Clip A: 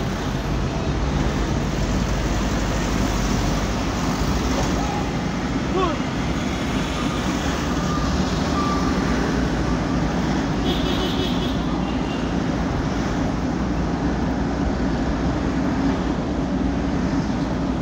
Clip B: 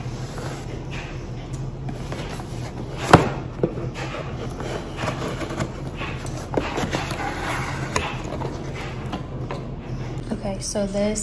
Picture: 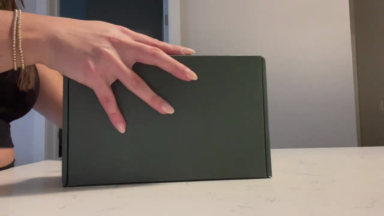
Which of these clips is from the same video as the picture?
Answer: B